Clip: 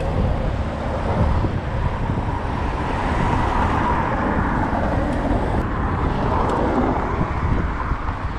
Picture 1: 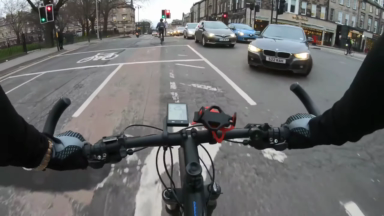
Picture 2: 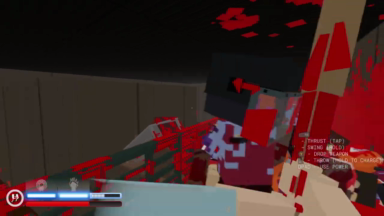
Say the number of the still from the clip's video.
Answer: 1